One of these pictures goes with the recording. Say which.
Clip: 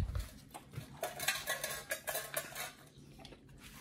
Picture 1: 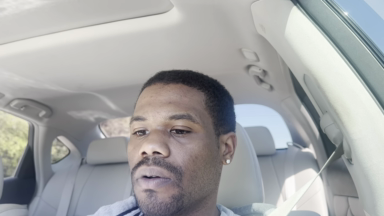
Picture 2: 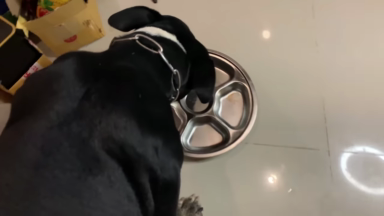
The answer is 2